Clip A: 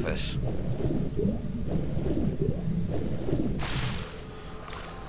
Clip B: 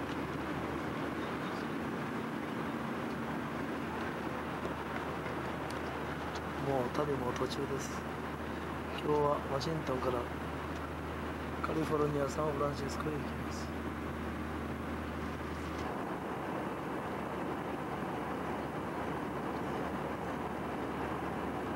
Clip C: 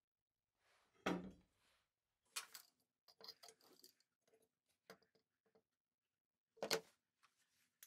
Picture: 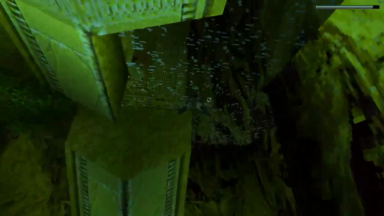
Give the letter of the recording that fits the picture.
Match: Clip A